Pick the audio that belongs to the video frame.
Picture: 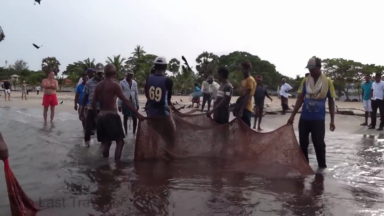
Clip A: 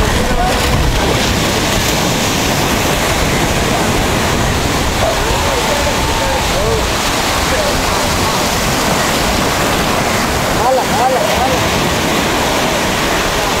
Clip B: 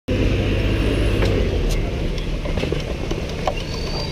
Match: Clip A